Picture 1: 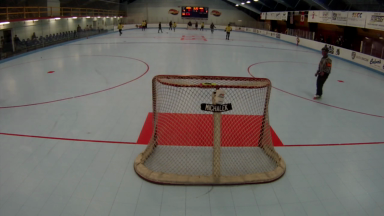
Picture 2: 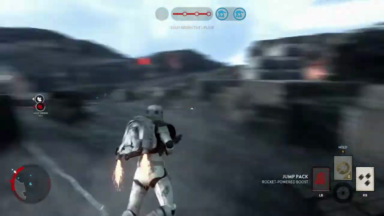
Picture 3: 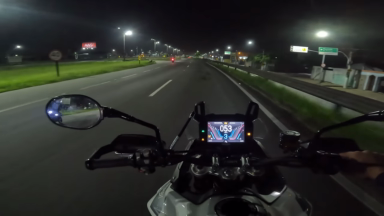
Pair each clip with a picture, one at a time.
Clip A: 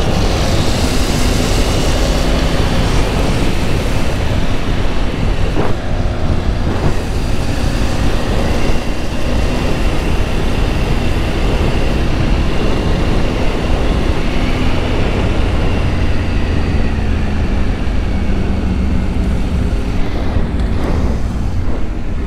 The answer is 3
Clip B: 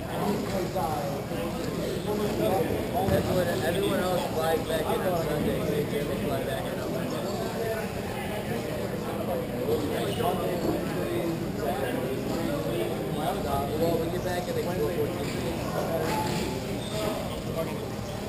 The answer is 1